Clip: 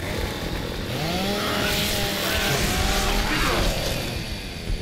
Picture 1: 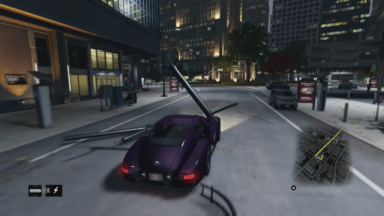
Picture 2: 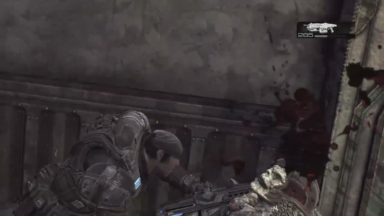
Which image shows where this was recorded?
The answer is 2